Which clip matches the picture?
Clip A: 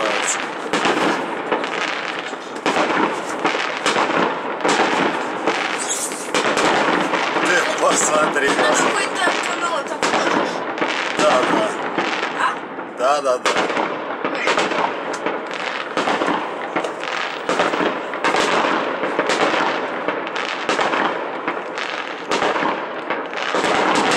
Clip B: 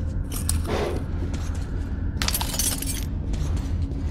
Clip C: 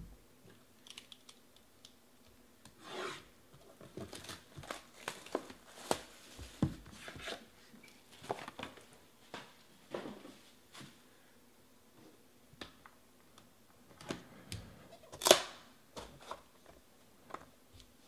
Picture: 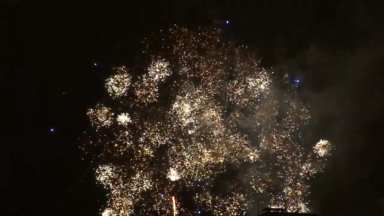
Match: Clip A